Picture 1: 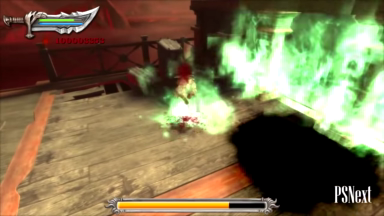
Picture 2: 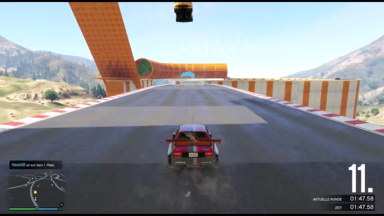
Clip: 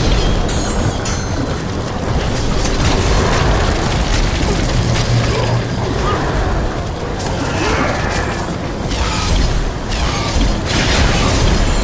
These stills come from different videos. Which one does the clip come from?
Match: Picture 1